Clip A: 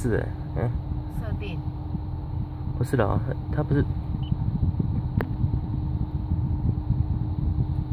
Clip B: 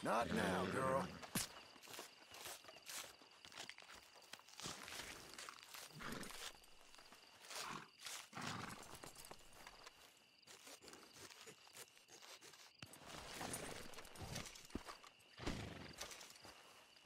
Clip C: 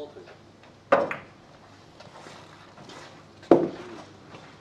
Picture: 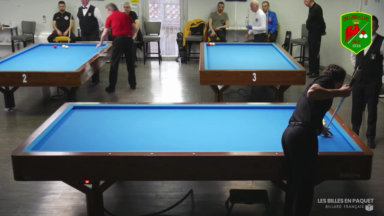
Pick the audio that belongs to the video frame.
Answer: C